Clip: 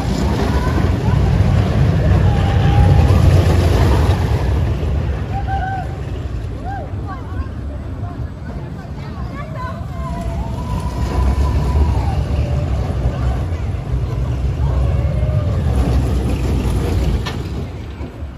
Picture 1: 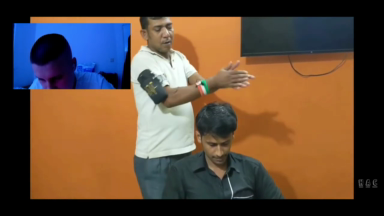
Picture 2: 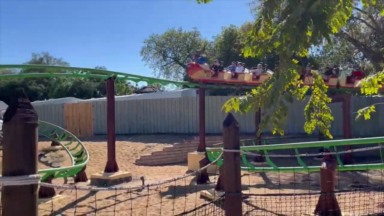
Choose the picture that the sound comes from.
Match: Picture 2